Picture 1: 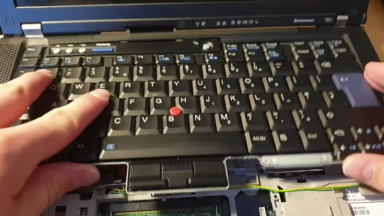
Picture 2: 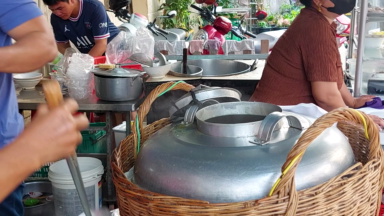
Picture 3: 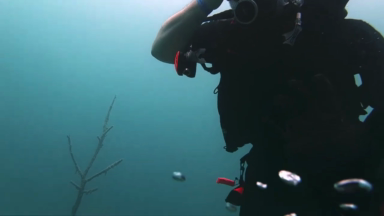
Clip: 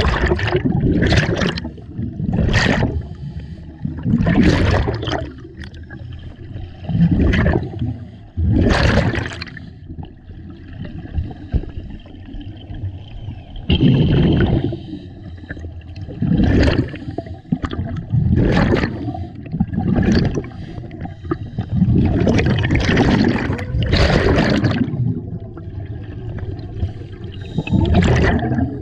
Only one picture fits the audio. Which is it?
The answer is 3